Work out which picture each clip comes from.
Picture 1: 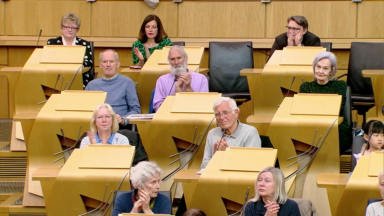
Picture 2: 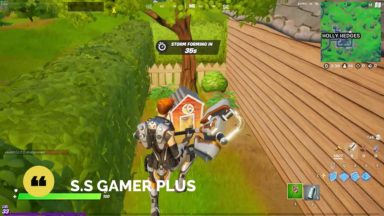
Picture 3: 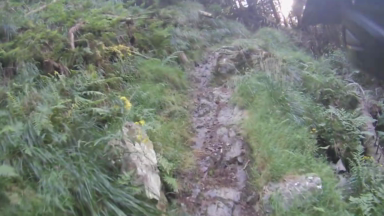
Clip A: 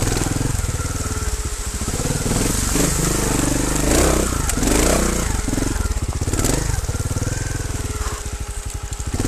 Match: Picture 3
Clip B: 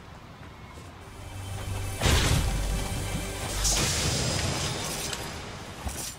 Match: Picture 2